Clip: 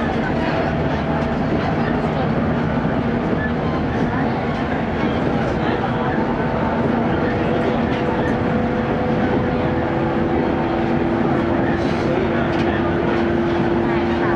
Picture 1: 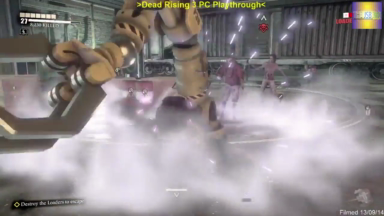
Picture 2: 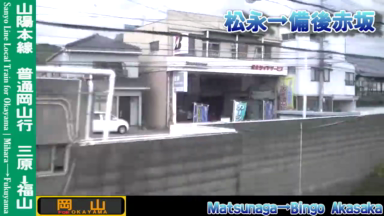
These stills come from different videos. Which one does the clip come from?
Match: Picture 2